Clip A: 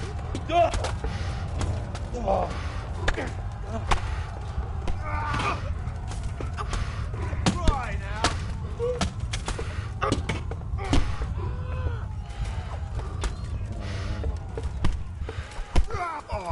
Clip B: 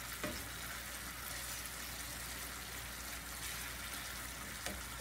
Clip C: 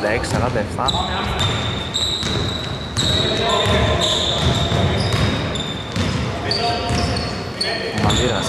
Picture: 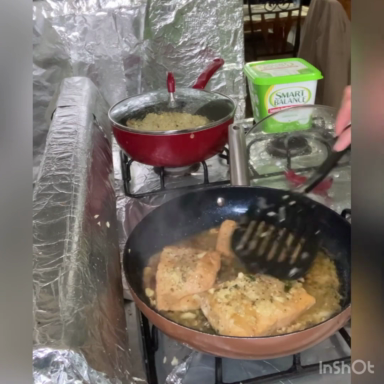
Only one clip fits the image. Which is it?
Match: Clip B